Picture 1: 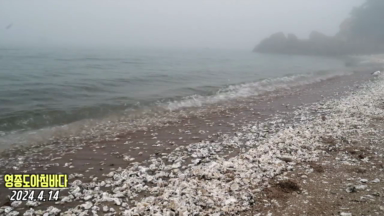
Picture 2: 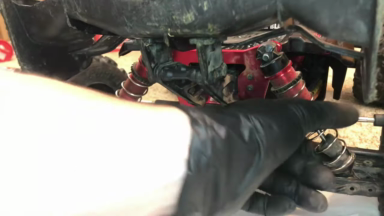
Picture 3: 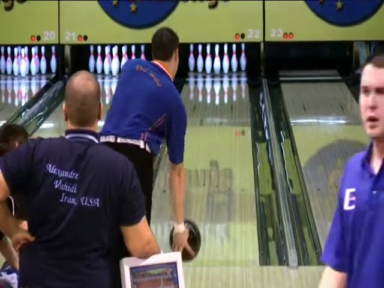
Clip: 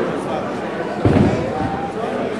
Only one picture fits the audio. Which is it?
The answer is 3